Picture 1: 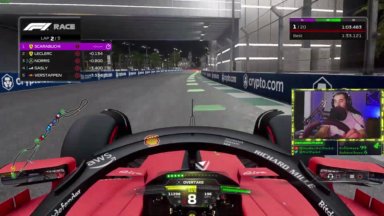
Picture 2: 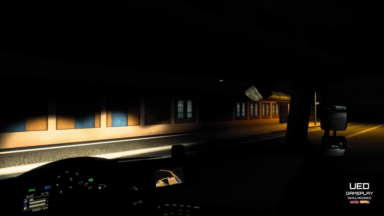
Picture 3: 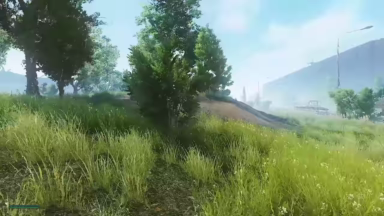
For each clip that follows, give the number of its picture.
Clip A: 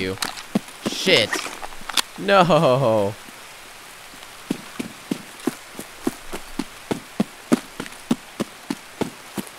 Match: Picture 3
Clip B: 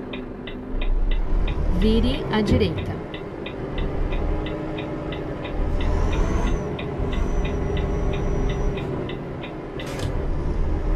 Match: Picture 2